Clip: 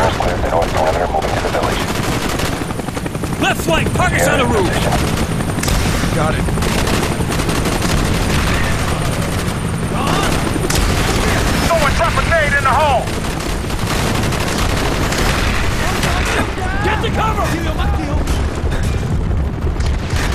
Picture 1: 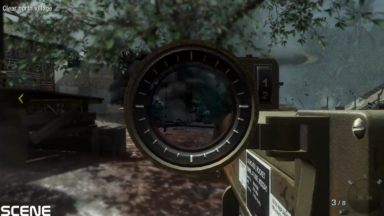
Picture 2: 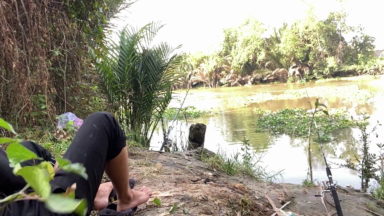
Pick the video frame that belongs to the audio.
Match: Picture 1